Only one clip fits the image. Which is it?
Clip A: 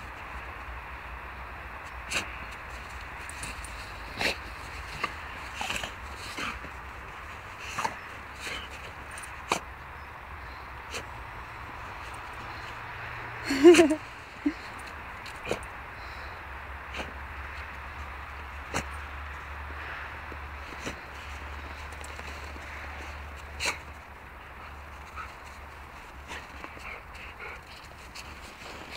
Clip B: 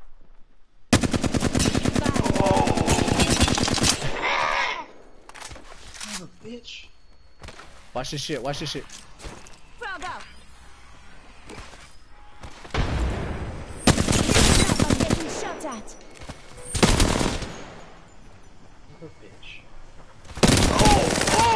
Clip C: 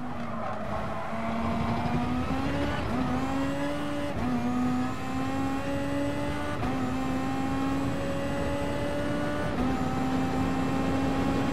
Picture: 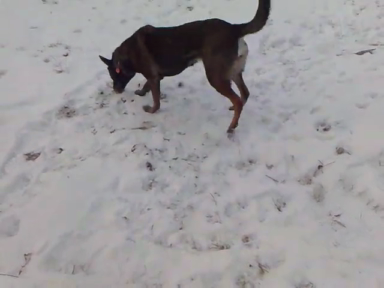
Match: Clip A